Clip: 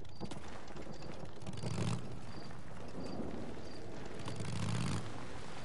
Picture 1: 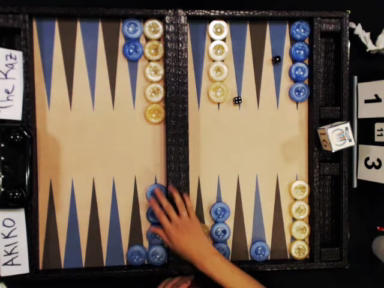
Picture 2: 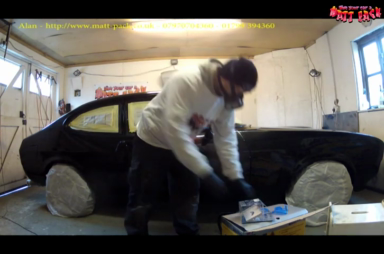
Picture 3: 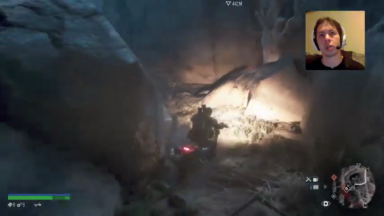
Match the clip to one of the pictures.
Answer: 3